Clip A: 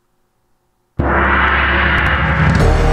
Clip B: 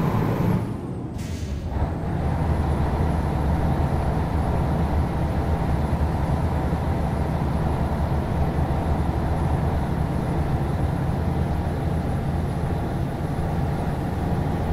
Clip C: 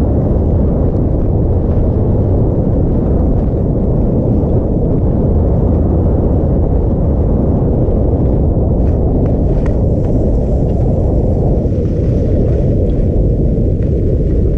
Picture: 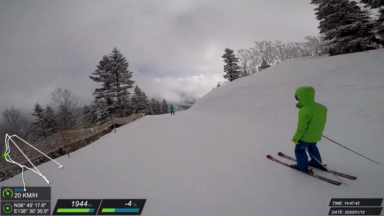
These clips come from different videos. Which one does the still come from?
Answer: C